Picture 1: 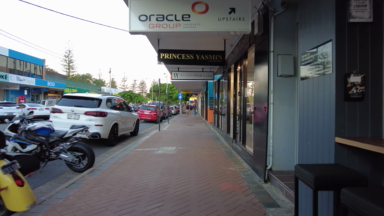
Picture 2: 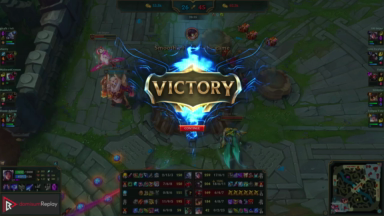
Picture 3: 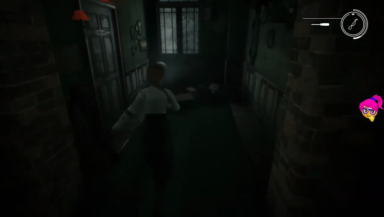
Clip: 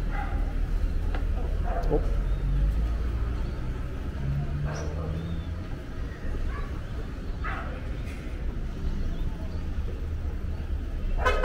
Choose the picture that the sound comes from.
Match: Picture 1